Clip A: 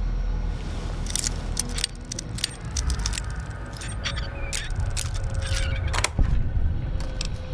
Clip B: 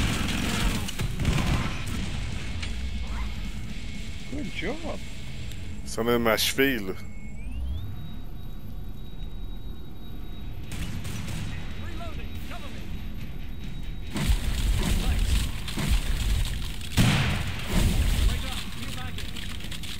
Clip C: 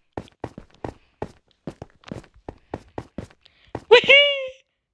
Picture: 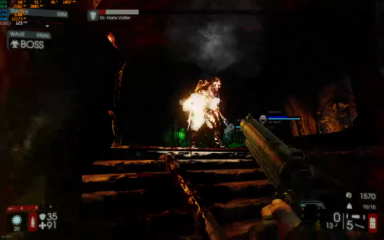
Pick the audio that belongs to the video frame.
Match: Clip B